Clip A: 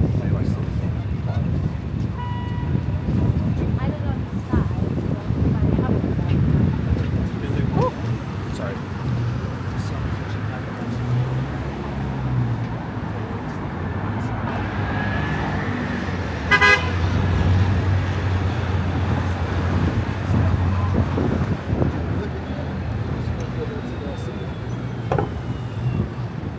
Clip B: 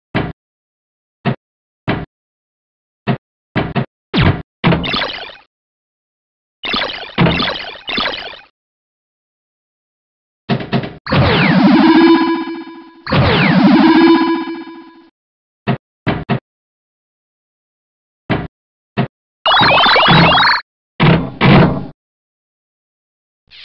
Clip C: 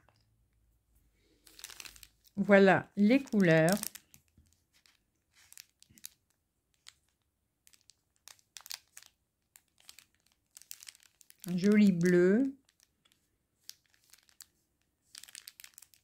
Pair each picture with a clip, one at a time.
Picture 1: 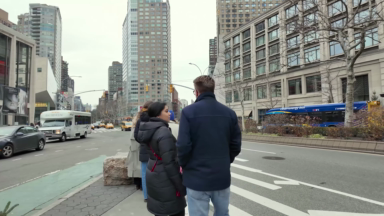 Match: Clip A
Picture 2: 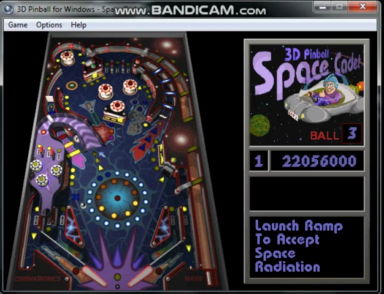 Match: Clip B